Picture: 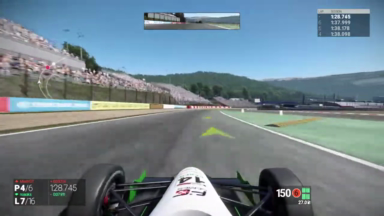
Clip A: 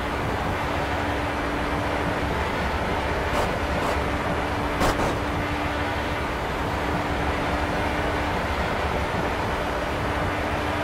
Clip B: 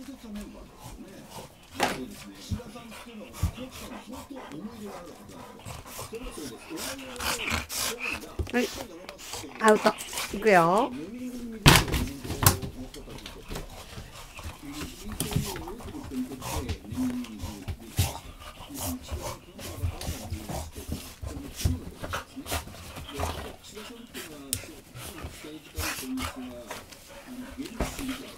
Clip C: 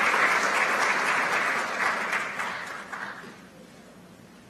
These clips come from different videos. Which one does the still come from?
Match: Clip A